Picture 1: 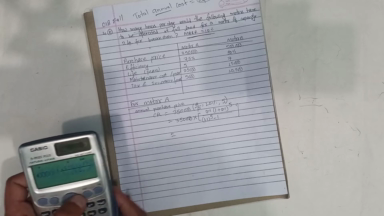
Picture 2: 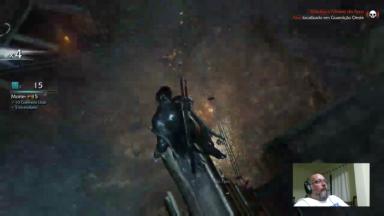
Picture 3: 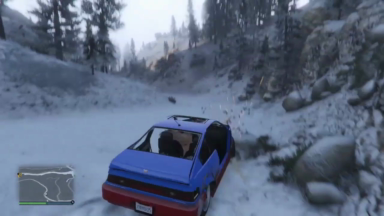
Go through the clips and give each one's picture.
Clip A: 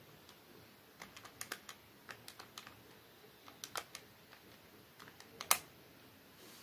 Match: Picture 1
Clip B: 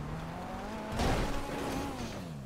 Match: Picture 3